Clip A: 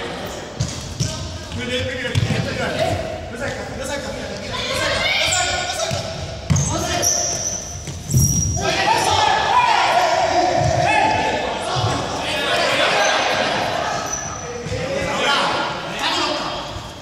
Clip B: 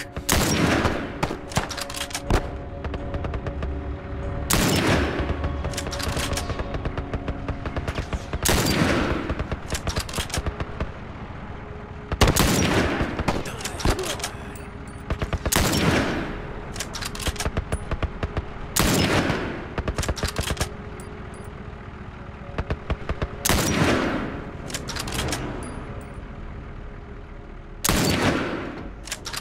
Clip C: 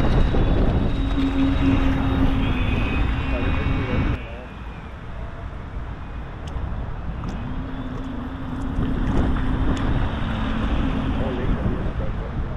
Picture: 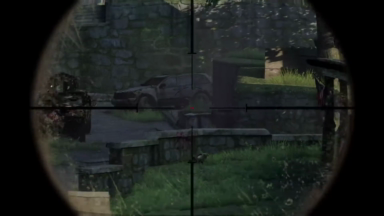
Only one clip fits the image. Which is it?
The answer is B